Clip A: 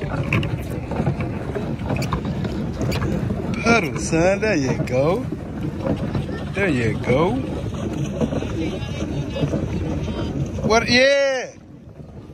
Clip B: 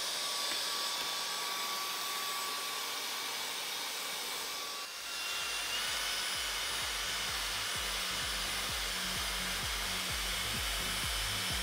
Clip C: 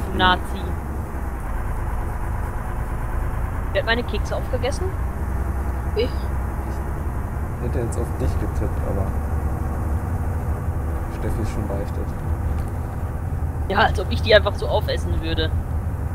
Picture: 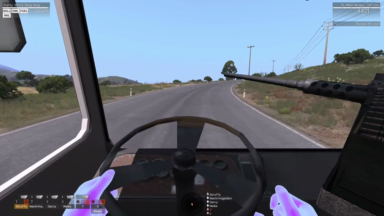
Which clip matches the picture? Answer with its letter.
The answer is C